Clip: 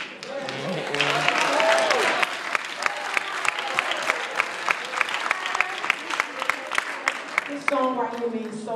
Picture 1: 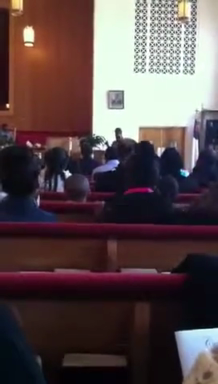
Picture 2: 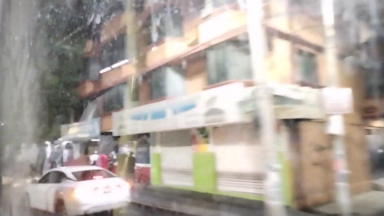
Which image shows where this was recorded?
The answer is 1